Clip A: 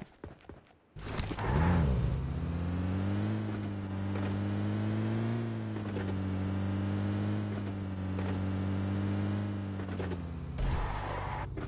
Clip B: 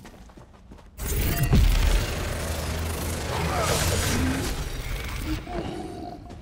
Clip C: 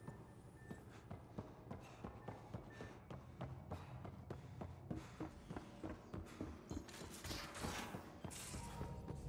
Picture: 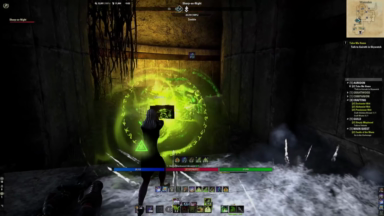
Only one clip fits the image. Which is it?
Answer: B